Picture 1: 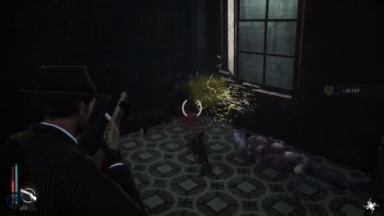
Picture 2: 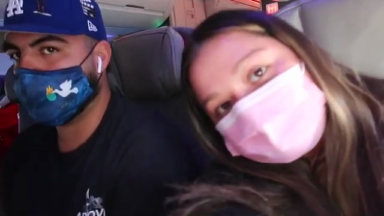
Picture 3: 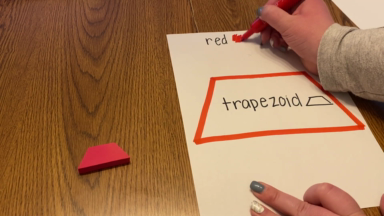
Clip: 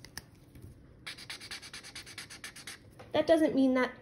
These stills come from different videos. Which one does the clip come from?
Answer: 3